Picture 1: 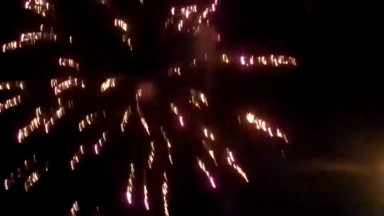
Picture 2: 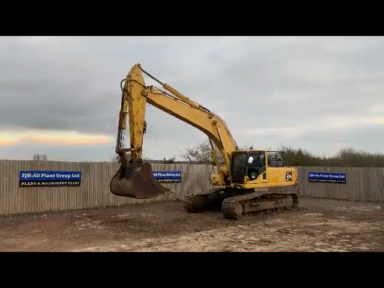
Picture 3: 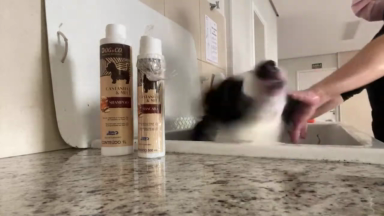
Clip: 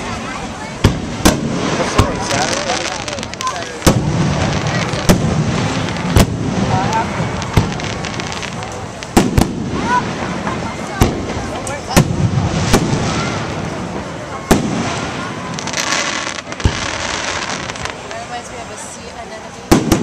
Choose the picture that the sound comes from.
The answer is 1